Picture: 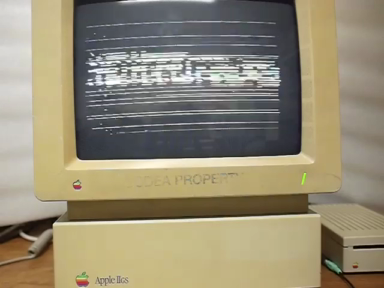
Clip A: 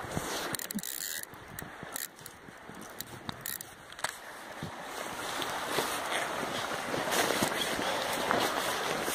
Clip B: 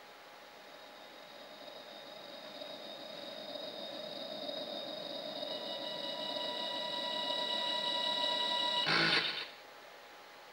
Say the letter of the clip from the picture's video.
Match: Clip B